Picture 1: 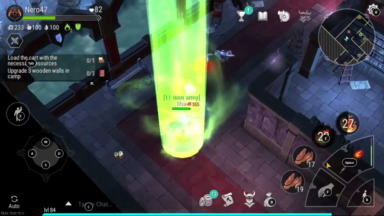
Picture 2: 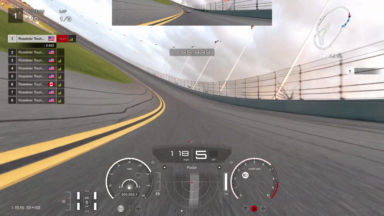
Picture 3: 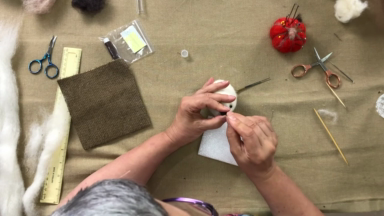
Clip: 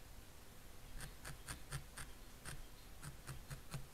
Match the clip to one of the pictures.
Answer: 3